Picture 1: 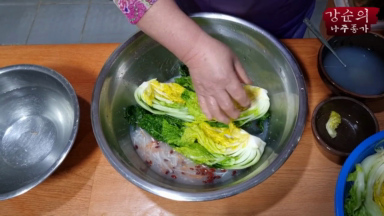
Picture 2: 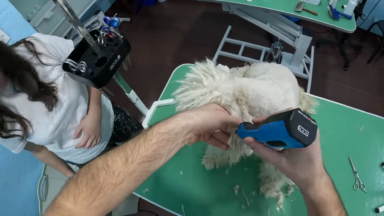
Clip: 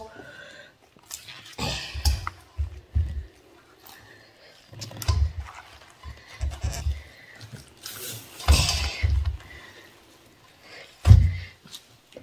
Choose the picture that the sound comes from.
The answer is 1